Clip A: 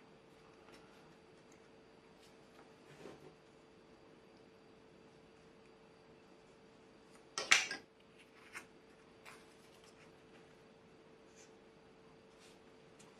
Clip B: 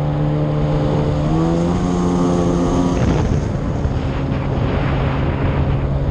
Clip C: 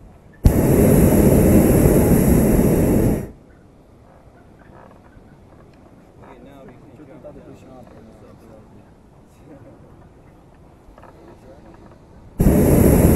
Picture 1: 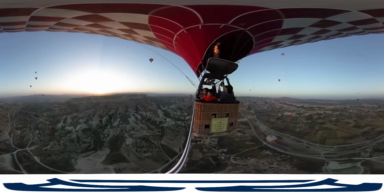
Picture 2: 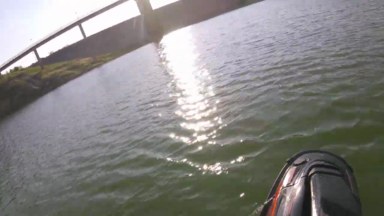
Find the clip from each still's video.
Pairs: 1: C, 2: B